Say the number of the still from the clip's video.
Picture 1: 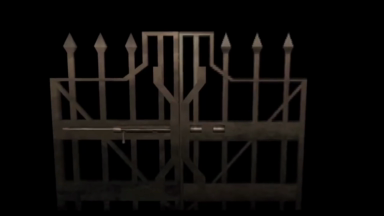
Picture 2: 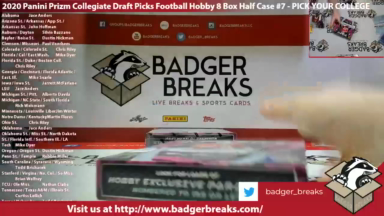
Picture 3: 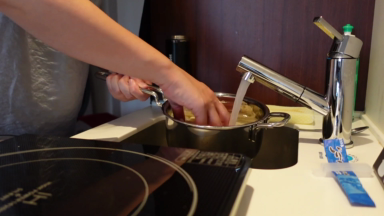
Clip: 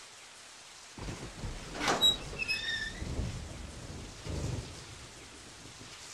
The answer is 1